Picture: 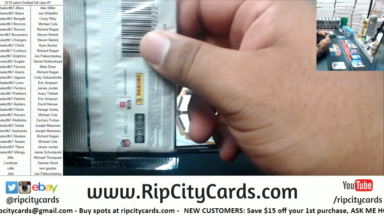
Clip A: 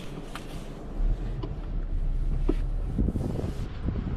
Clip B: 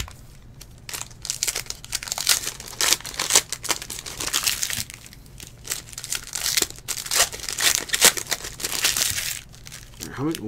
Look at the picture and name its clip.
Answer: B